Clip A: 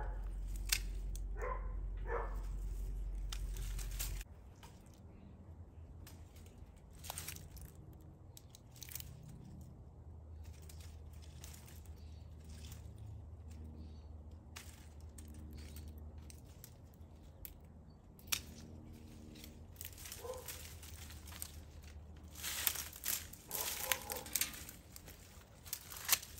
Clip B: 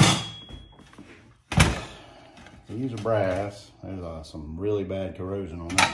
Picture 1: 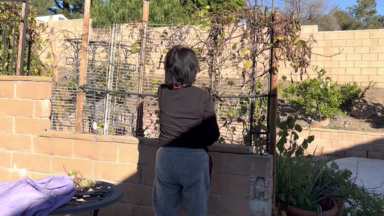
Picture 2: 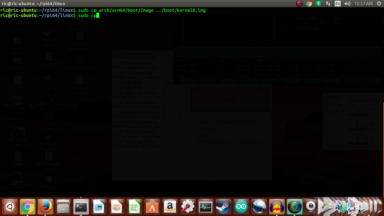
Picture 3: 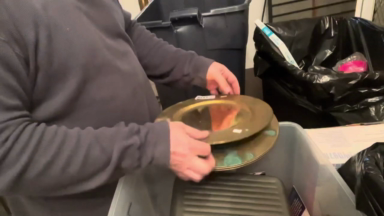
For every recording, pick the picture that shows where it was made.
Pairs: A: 1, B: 3